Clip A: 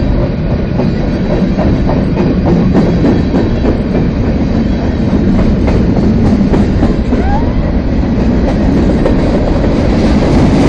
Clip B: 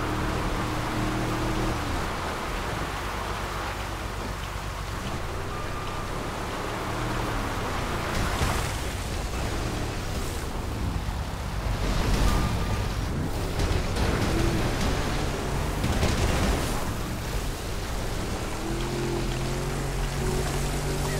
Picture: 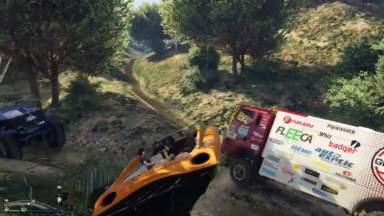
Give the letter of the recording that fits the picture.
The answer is B